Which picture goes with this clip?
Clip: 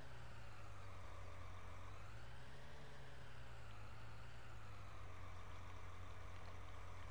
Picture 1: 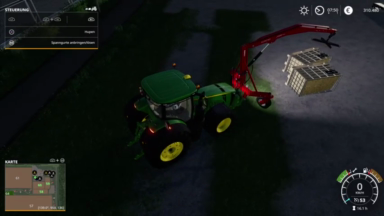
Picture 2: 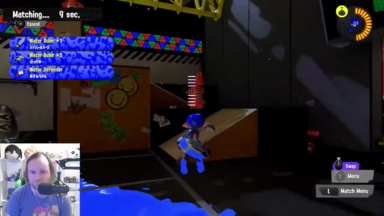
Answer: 1